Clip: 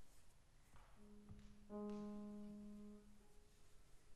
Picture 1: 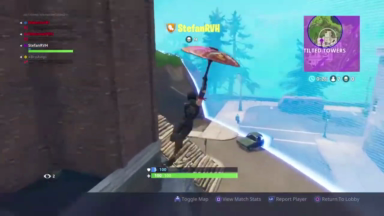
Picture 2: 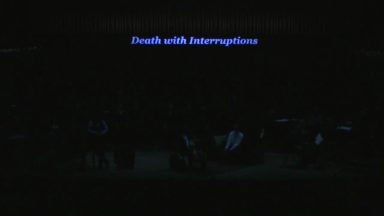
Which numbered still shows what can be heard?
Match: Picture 2